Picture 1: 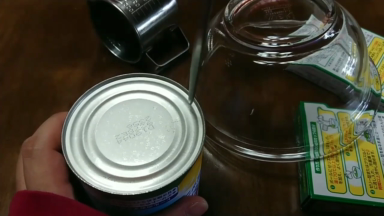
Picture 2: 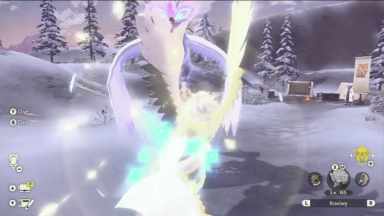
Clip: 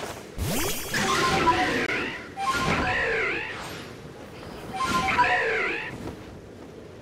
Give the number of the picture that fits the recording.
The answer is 2